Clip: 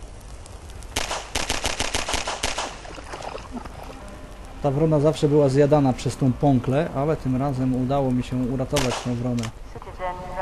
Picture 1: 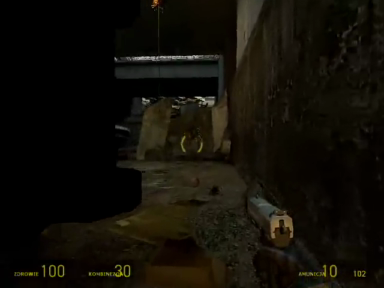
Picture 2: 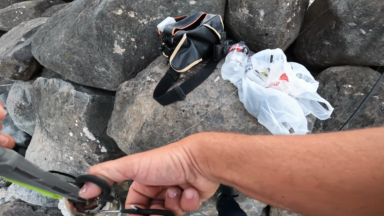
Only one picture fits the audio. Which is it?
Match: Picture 1